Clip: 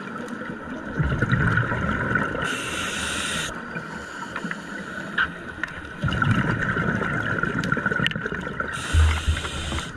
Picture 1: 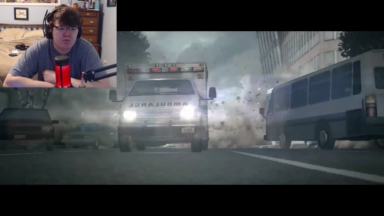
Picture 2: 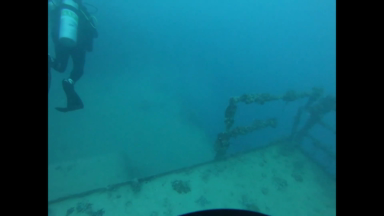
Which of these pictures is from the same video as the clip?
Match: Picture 2